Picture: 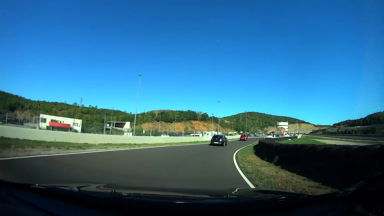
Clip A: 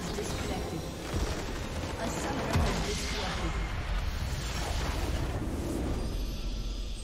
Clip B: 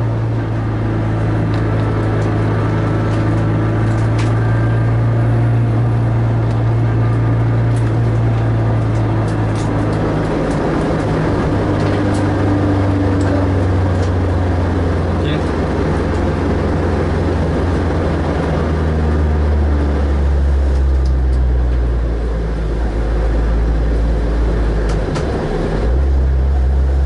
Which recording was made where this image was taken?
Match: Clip B